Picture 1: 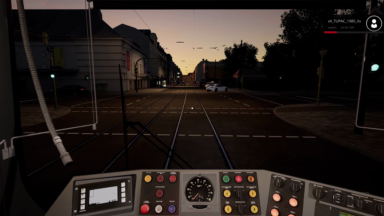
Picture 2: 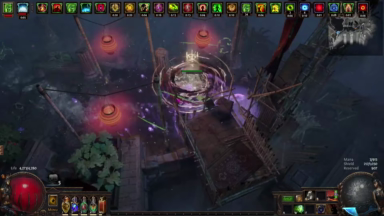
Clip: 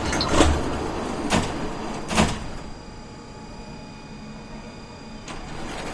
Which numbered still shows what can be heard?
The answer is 1